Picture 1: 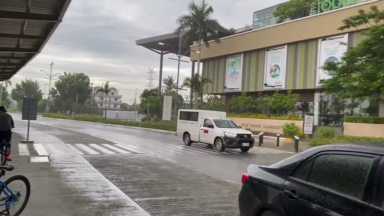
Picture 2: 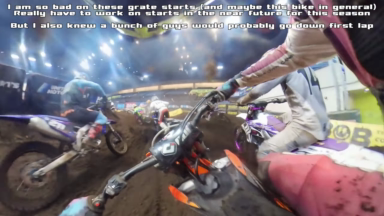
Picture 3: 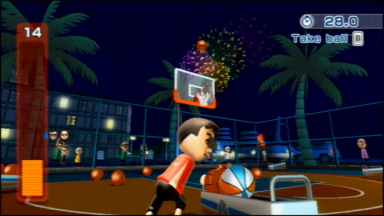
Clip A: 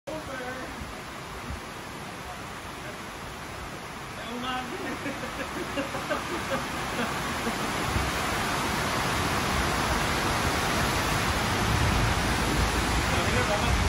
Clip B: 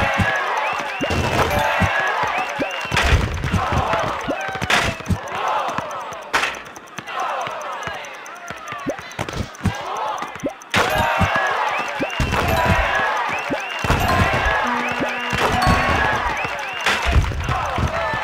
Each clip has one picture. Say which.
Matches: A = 1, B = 3